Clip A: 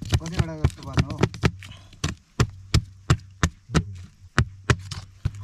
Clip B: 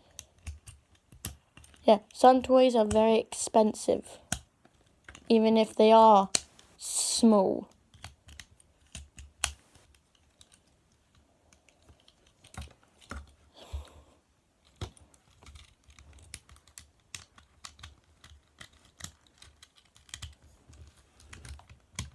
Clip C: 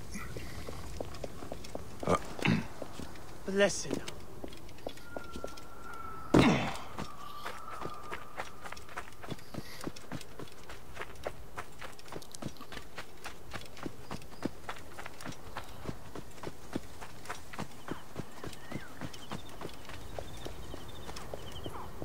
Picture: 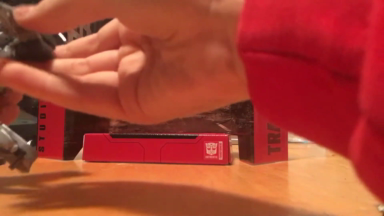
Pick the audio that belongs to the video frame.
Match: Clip B